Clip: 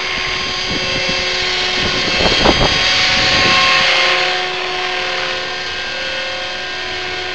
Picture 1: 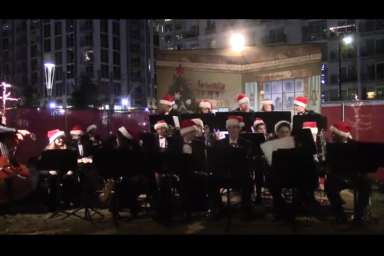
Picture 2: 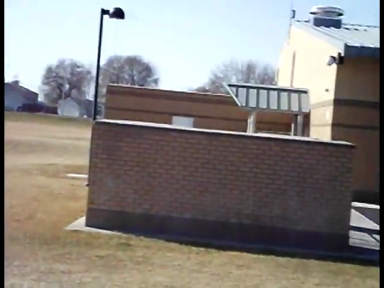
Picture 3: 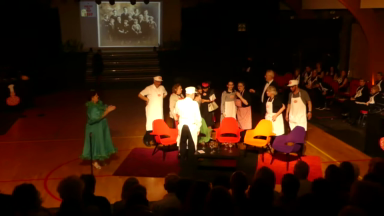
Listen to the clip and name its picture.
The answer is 2